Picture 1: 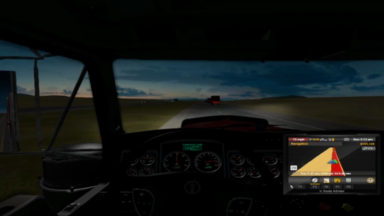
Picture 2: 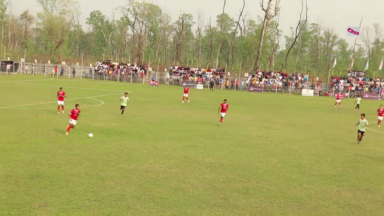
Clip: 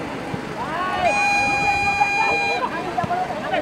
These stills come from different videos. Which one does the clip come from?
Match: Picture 2